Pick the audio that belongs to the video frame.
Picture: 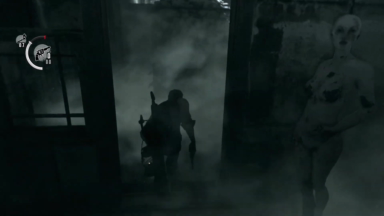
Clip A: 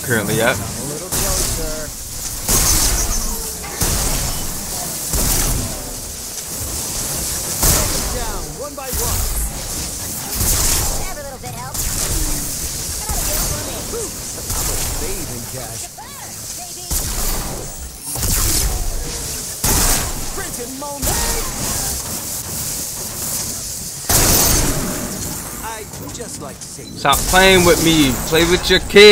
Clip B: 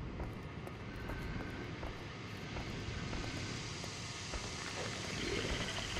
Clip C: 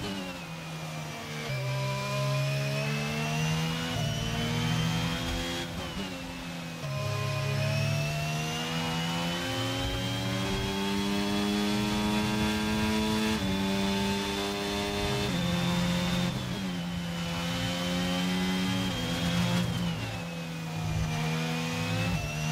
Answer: B